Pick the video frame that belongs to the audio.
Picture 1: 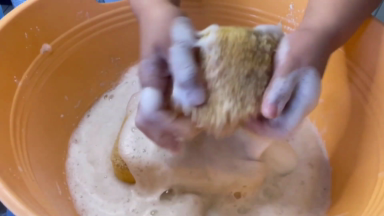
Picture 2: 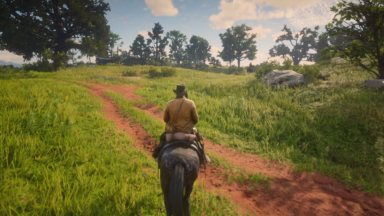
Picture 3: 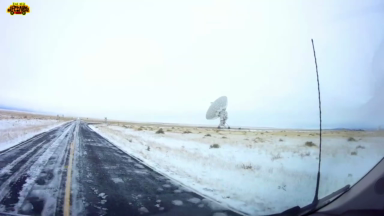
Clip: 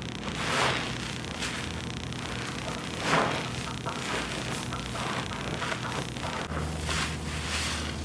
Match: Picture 1